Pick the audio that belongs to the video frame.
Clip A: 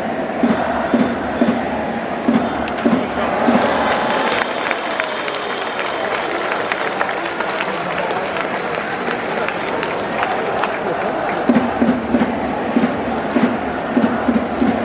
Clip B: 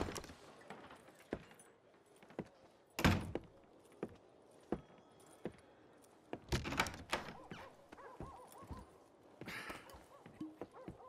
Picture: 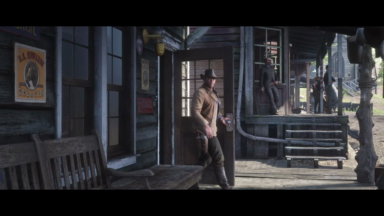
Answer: B